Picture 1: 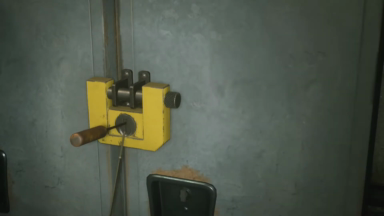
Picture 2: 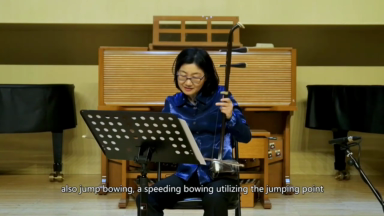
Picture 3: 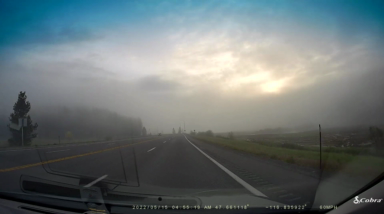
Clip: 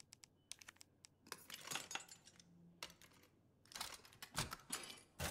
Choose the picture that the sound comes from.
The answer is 1